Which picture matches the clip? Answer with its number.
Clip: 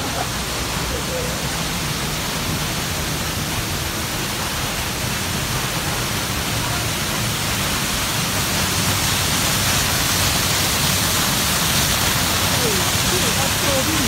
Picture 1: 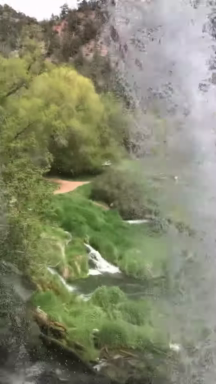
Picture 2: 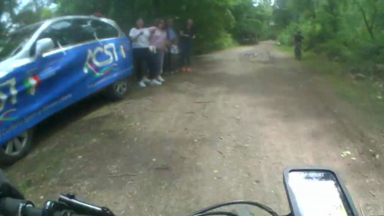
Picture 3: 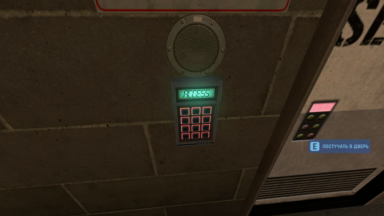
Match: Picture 1